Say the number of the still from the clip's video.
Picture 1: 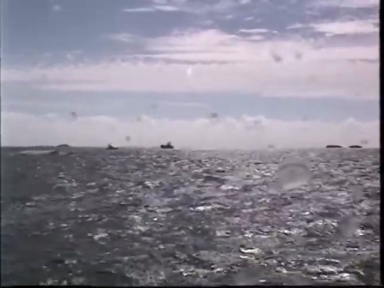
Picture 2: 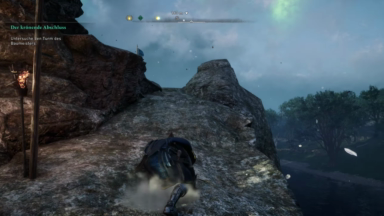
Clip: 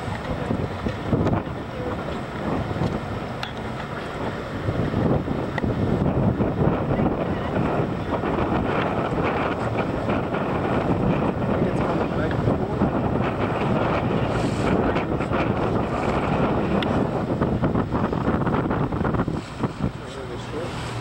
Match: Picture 1